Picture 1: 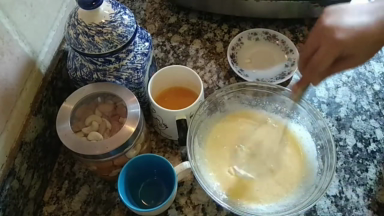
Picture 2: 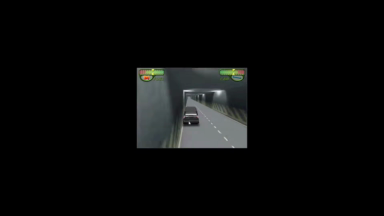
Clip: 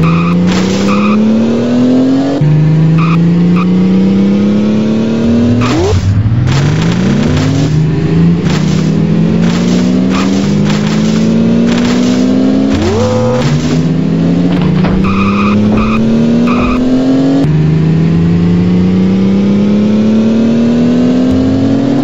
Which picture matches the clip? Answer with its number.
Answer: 2